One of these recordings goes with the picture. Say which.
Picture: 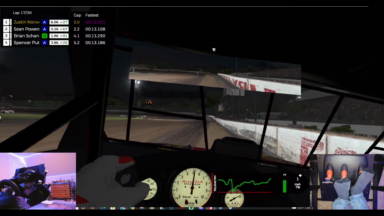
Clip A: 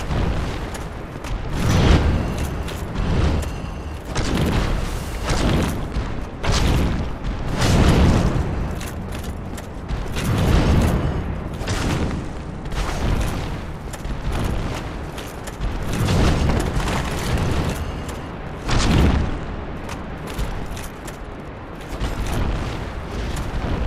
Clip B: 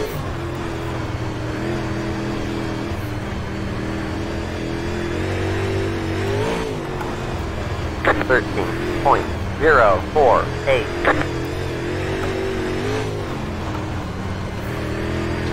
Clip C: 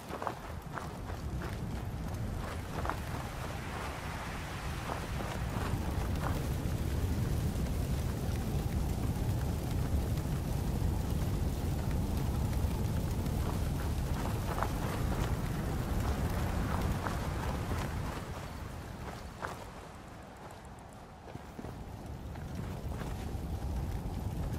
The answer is B